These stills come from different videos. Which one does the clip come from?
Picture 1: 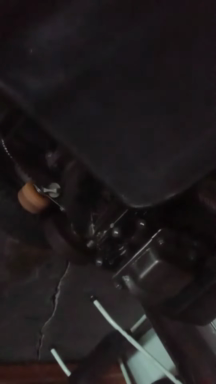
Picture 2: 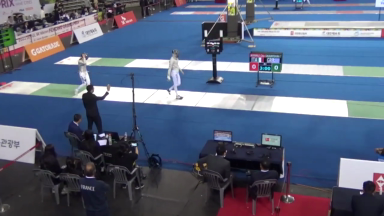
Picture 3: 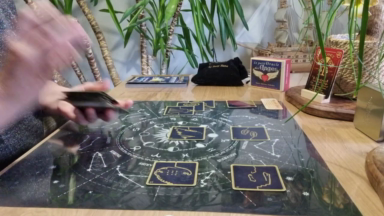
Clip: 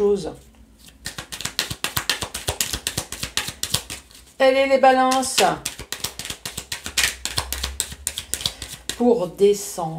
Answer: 3